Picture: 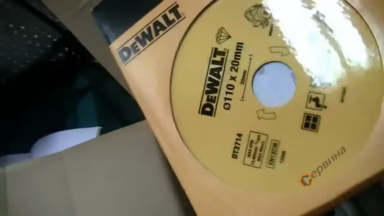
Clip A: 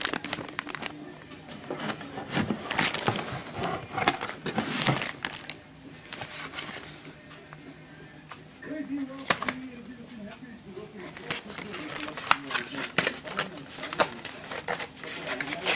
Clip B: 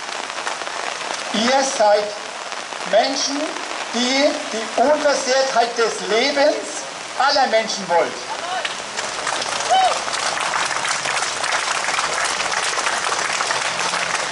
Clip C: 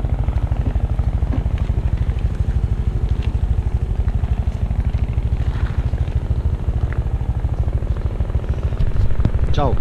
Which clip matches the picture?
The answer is A